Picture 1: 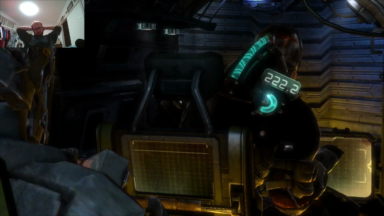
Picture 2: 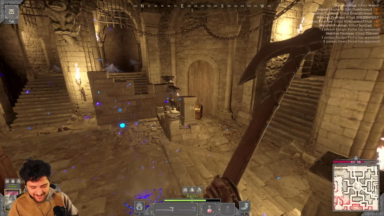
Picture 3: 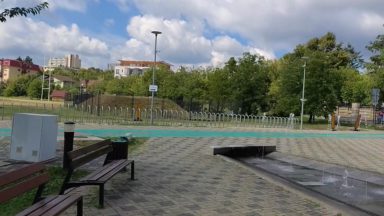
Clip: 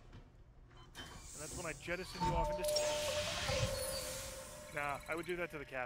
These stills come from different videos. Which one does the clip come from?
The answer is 1